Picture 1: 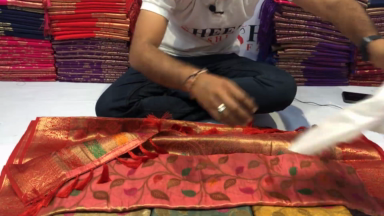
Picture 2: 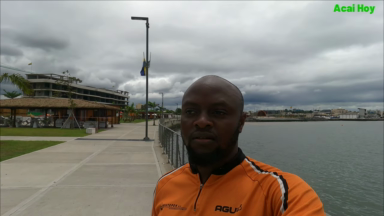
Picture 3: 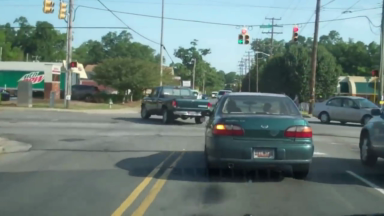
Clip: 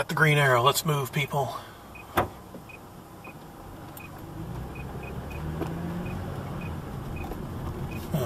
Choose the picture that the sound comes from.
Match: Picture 3